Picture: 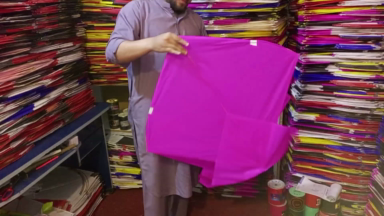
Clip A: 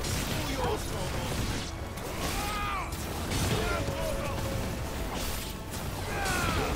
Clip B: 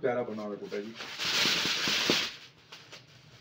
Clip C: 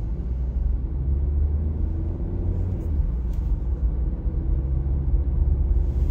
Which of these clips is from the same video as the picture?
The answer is B